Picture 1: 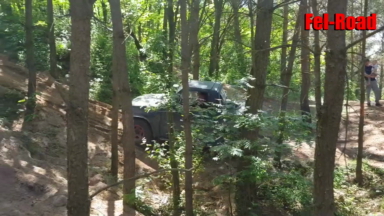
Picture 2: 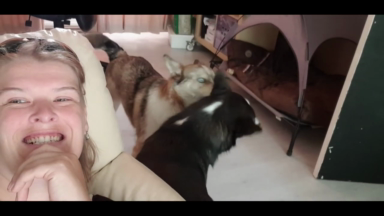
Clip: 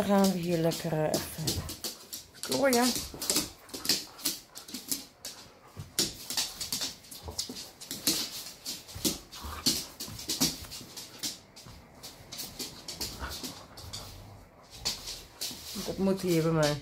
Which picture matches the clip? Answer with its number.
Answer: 2